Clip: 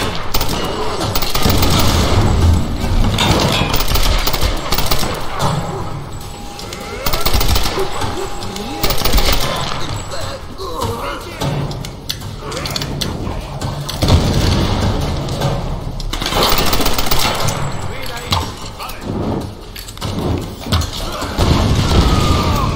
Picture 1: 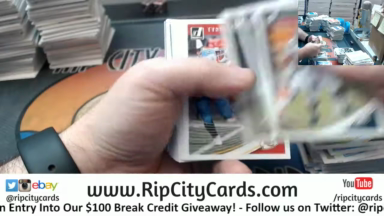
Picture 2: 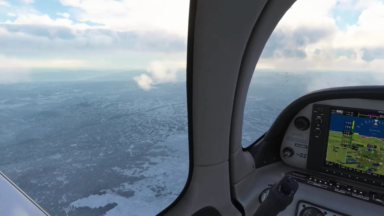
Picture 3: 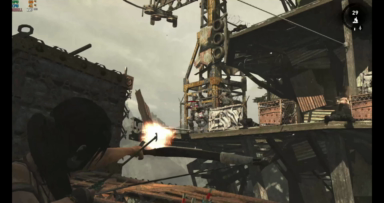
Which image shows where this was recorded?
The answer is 3